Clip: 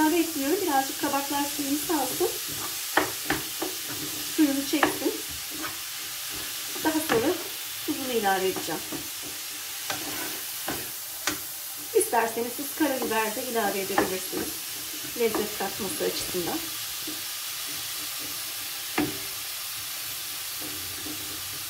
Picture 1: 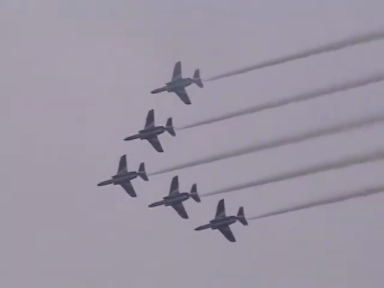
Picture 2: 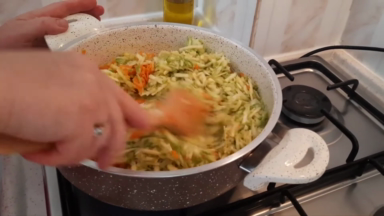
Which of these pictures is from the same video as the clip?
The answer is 2